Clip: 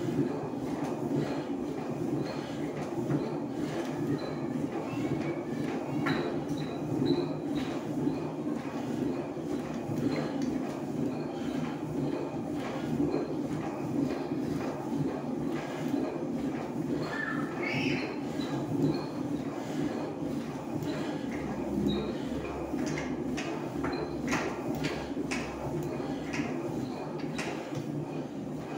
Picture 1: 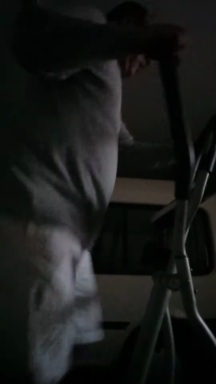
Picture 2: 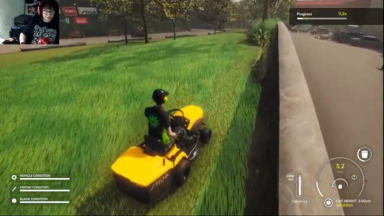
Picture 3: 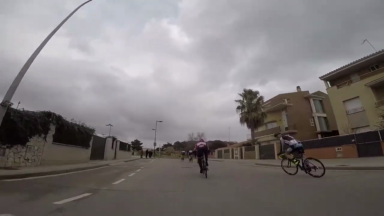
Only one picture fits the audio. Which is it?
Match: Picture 1